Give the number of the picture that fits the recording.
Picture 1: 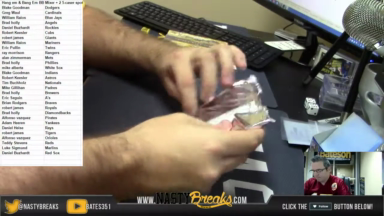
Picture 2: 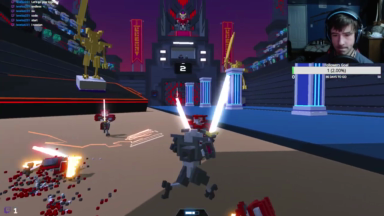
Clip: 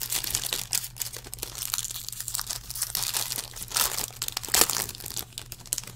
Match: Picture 1